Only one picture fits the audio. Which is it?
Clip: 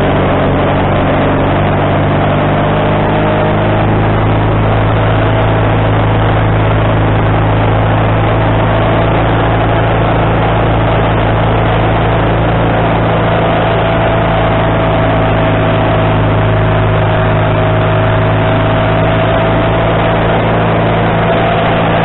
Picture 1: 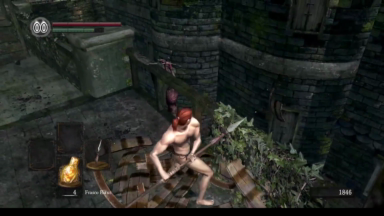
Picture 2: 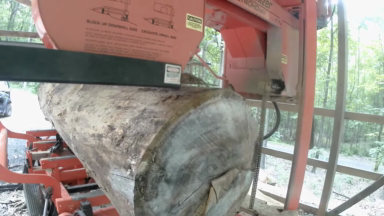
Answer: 2